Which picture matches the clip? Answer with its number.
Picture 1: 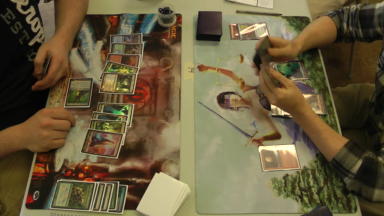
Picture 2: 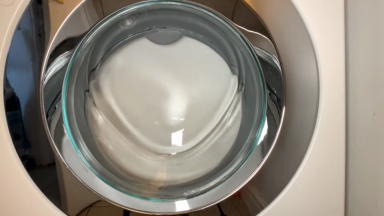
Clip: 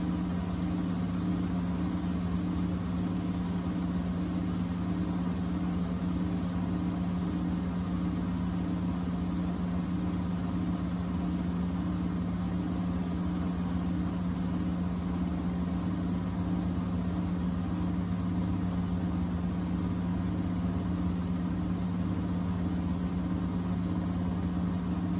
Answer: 2